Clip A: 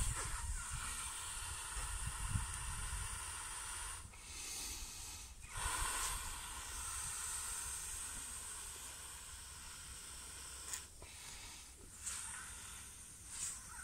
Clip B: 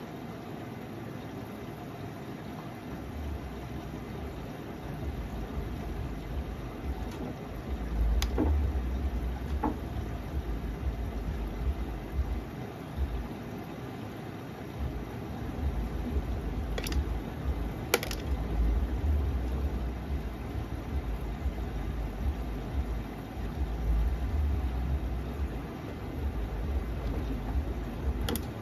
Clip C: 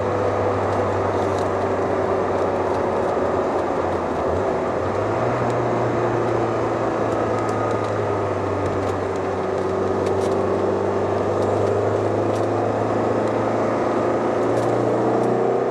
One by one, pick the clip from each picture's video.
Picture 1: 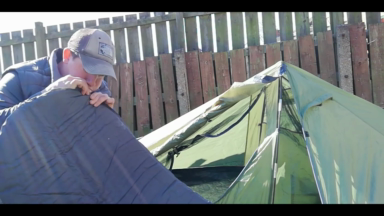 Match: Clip A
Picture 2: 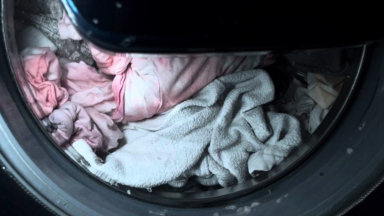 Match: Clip B